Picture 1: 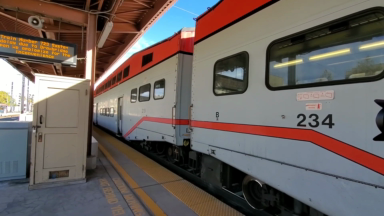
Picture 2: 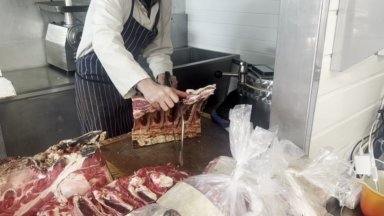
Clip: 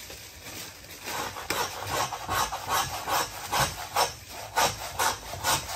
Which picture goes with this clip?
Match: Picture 2